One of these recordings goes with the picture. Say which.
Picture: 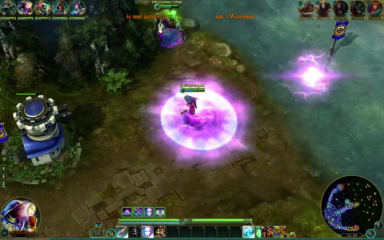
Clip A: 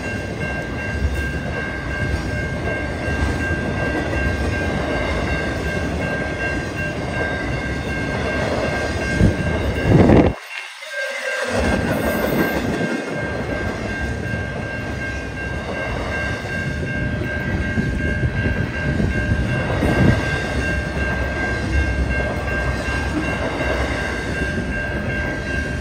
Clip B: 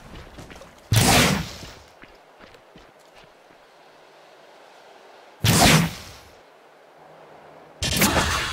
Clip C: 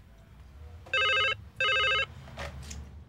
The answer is B